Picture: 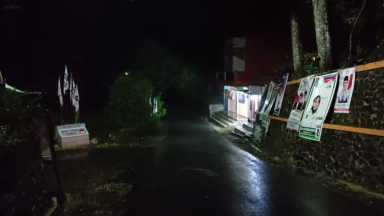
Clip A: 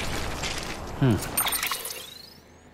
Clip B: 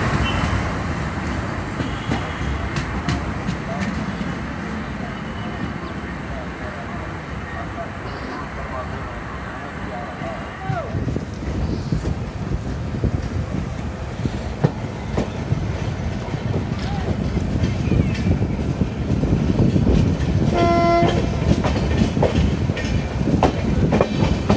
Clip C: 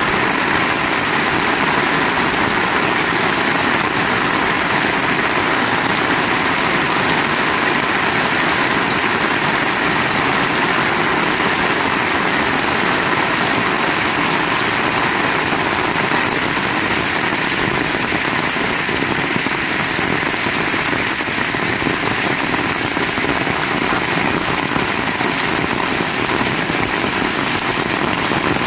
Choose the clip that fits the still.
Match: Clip C